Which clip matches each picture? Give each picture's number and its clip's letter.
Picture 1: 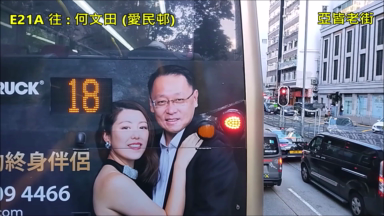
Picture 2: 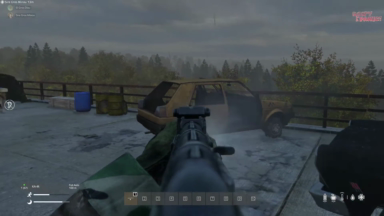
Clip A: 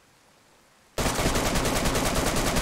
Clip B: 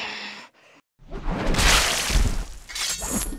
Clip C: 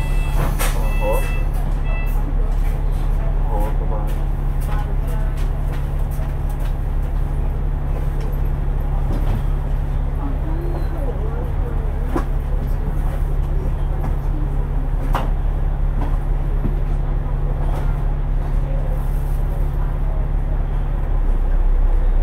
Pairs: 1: C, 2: A